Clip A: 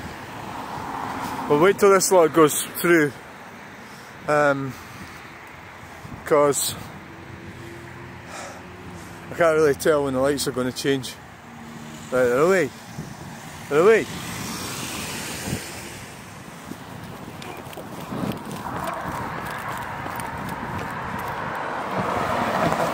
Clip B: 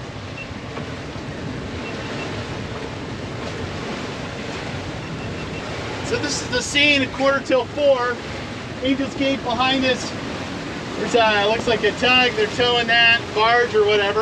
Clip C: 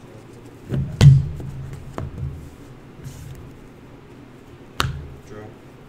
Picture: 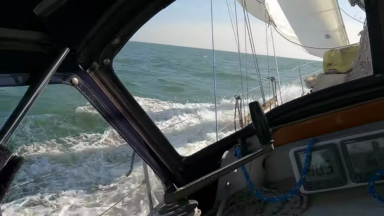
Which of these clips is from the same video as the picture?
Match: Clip B